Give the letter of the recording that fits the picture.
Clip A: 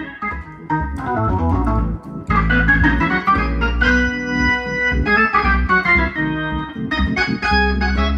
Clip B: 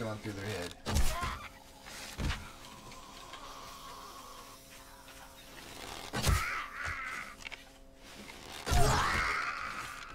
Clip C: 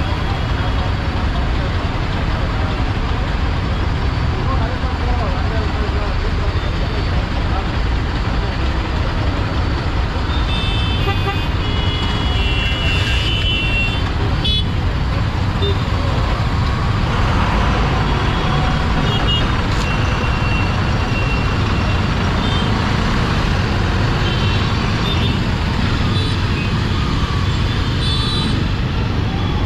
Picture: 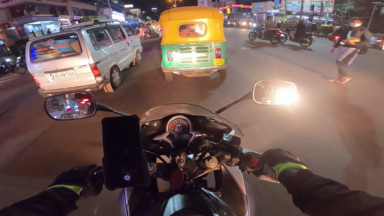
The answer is C